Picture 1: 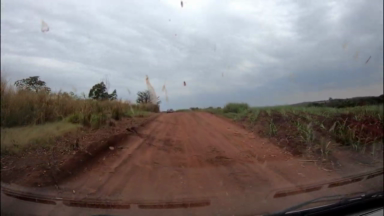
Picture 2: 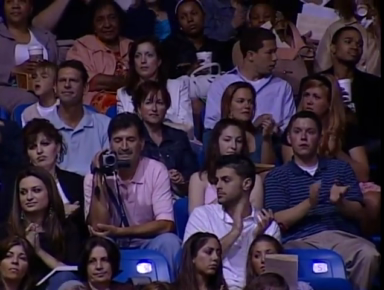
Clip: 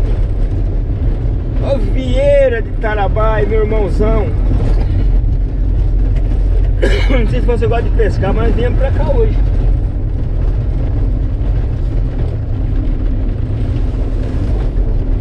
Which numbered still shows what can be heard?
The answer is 1